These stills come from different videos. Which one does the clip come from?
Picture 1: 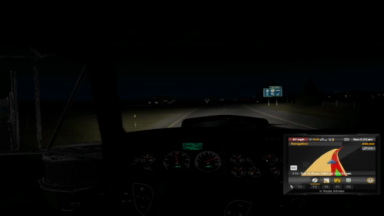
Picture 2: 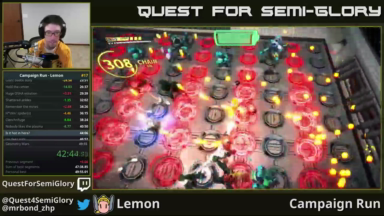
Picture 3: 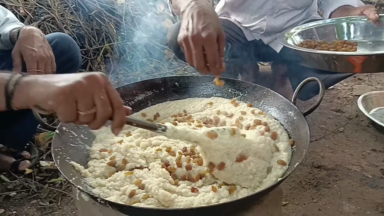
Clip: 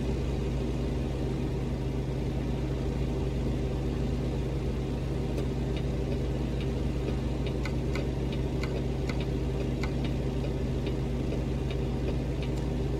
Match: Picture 1